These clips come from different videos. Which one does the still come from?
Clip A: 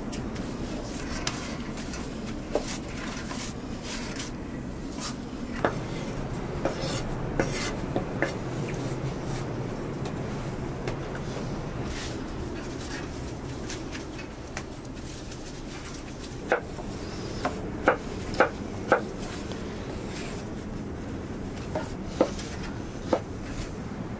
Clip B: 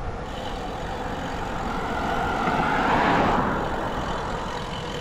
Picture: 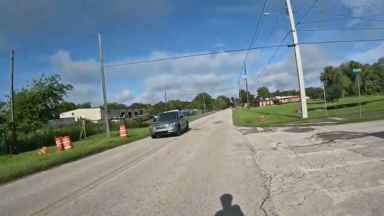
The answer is B